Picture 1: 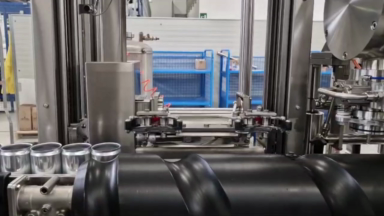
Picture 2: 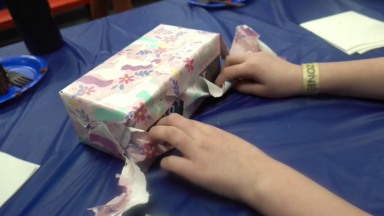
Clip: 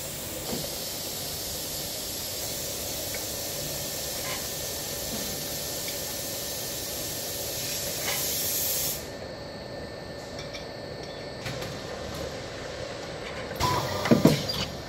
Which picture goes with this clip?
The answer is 1